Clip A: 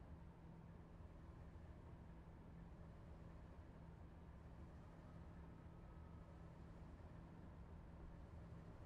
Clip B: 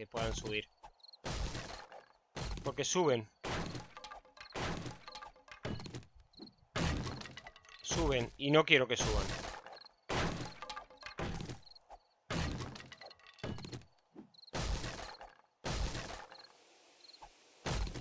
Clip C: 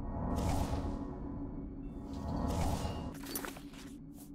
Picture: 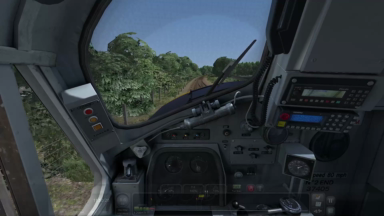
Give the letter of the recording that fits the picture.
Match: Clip A